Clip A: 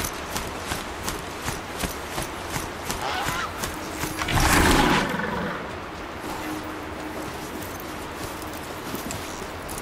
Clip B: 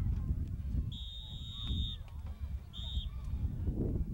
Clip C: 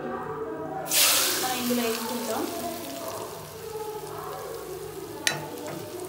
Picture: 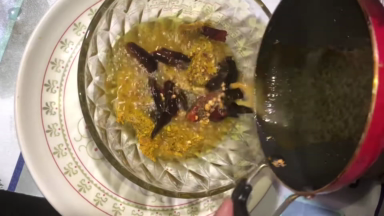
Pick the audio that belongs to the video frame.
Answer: C